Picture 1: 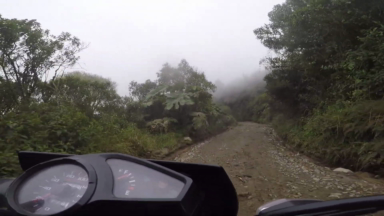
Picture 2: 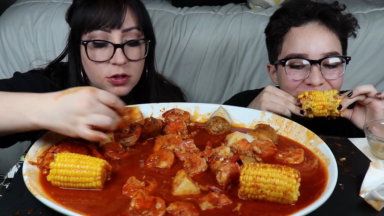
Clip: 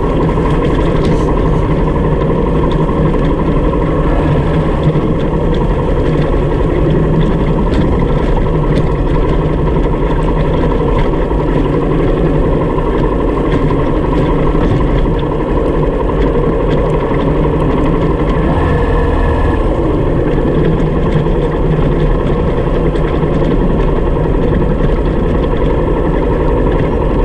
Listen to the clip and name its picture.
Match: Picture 1